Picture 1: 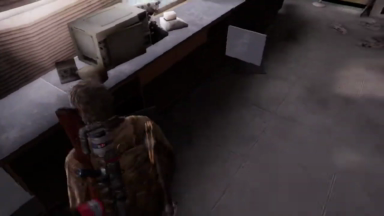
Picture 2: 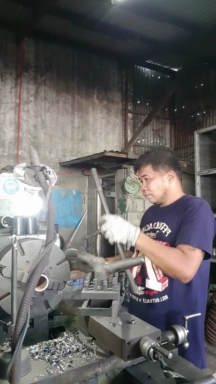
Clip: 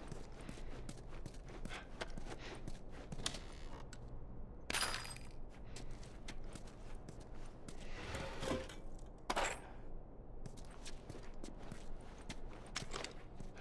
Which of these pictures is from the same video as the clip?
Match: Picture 1